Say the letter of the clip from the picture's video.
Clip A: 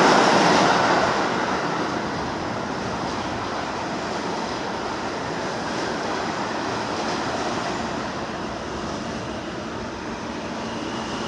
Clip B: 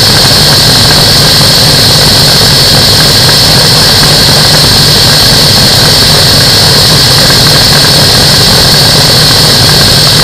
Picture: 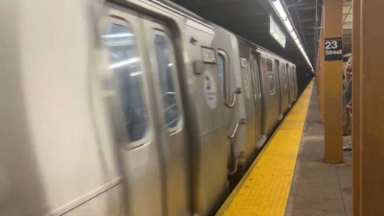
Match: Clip A